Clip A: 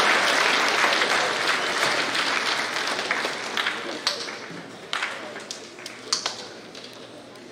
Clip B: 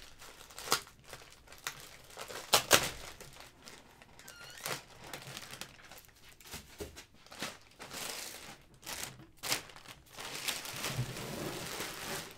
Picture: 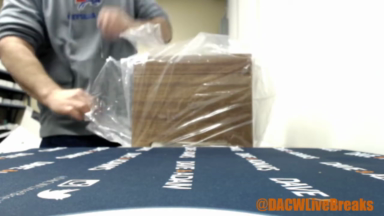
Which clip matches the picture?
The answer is B